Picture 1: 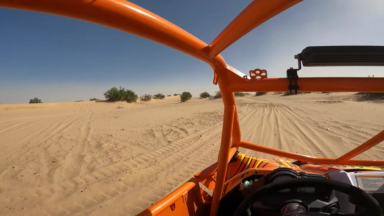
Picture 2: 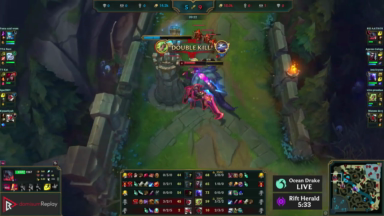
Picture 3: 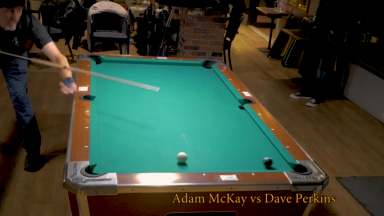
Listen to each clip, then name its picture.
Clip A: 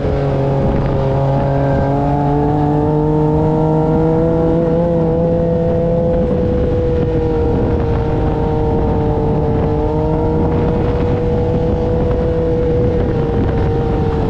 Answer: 1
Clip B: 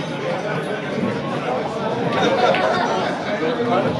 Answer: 3